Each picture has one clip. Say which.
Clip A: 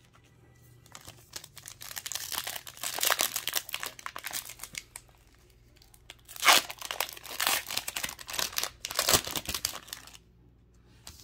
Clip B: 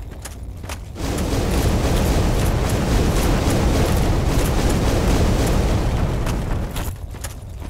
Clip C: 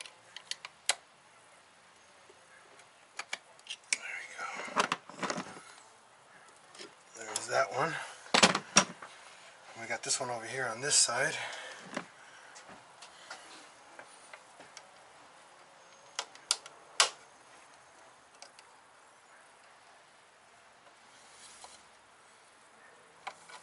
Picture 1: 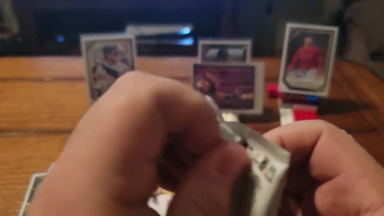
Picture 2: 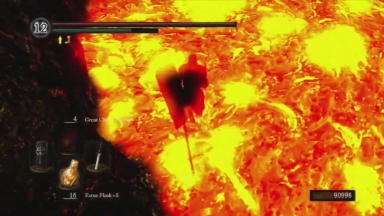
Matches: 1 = A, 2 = B